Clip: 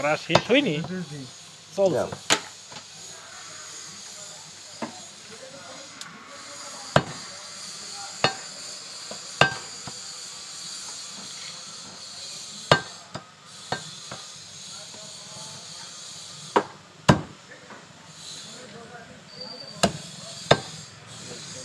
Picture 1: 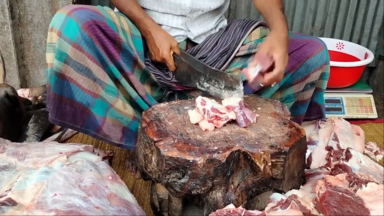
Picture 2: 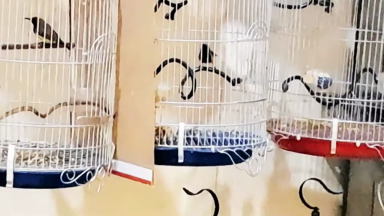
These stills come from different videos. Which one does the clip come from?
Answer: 1